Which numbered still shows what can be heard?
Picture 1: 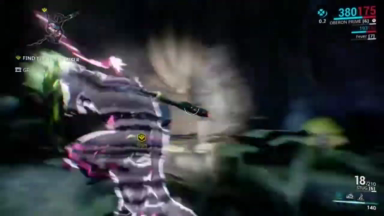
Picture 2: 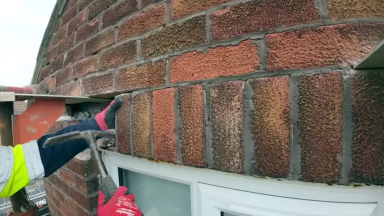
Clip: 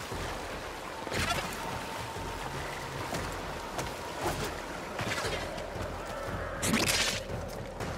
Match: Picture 1